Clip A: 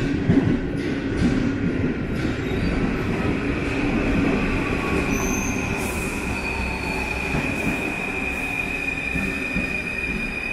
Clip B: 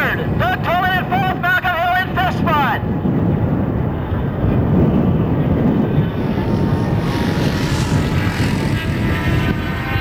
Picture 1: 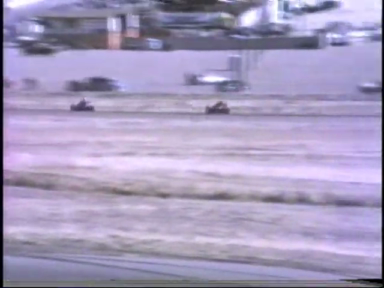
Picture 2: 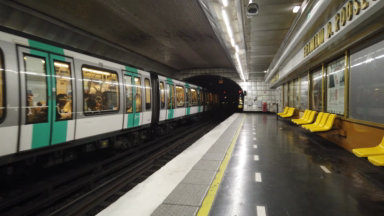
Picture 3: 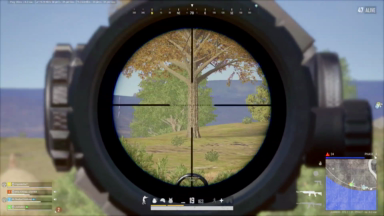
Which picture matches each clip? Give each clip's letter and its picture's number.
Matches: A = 2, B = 1